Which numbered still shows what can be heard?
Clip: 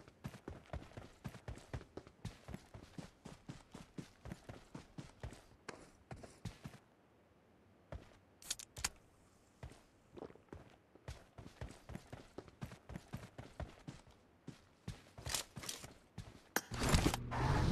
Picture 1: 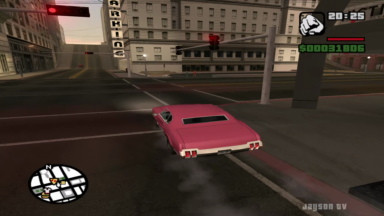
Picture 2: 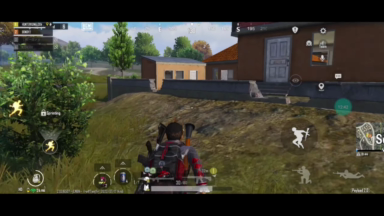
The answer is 2